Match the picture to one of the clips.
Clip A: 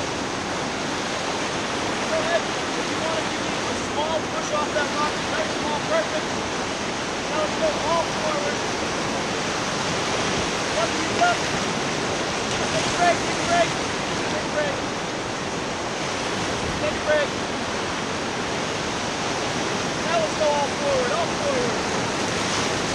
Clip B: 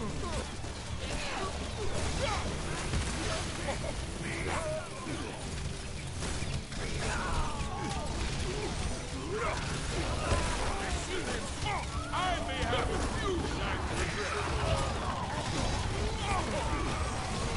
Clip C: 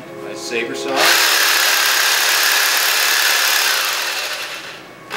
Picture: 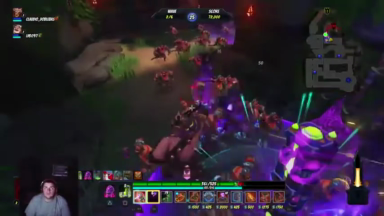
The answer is B